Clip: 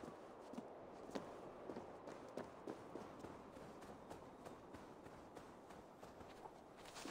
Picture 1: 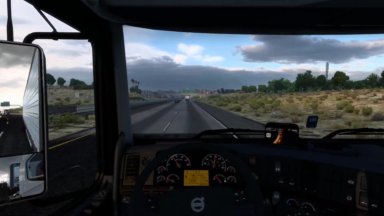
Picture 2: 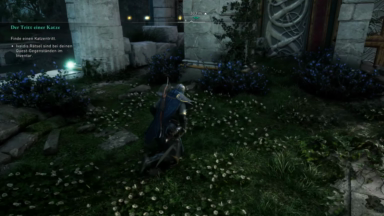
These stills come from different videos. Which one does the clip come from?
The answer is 2